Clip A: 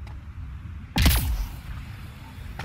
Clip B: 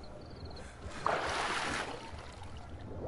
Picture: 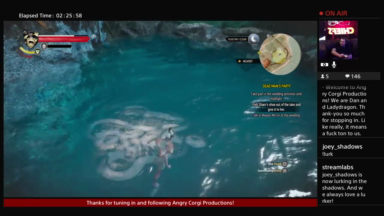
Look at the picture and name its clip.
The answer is B